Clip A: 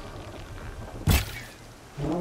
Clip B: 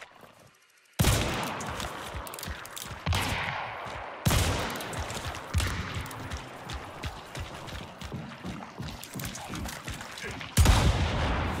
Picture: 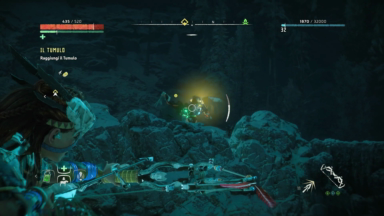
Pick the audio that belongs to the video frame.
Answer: A